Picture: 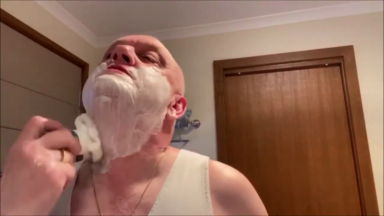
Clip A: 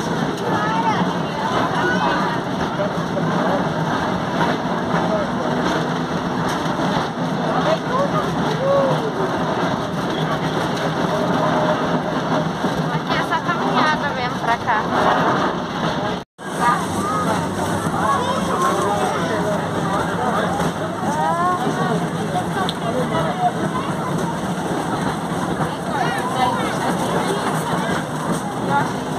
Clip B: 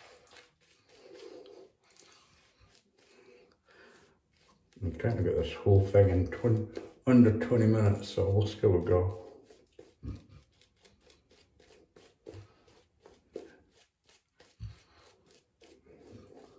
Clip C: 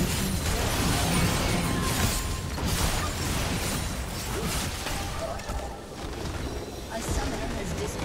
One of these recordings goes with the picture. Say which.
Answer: B